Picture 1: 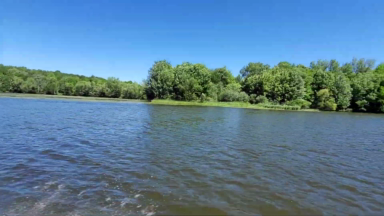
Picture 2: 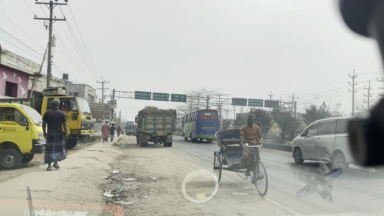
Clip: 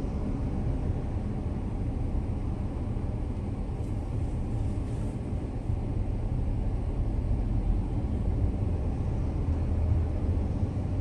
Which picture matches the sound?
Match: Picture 2